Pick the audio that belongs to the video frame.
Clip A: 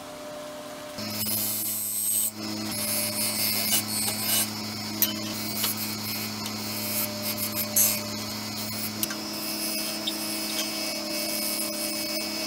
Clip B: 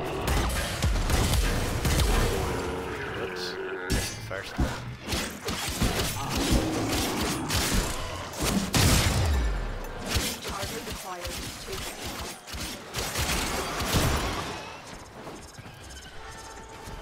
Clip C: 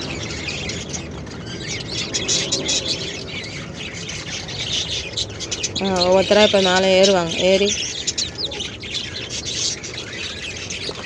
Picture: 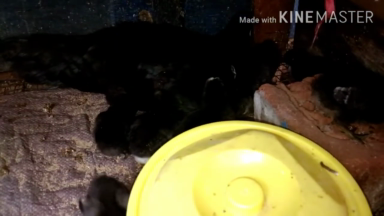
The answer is C